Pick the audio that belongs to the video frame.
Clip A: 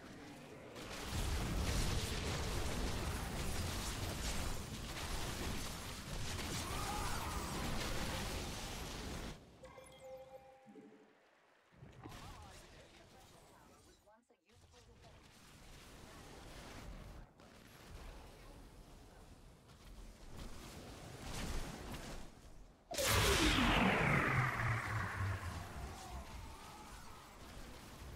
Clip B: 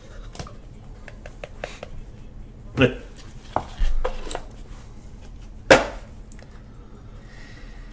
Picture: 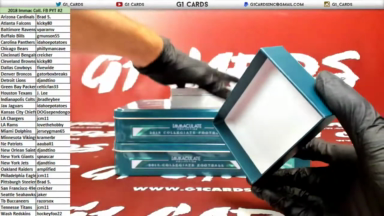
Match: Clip B